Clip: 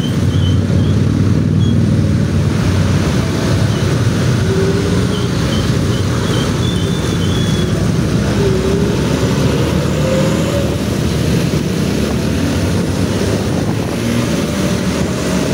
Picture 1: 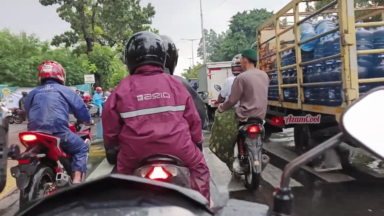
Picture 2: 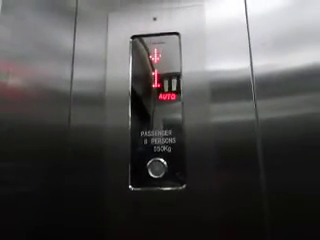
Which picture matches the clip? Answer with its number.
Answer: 1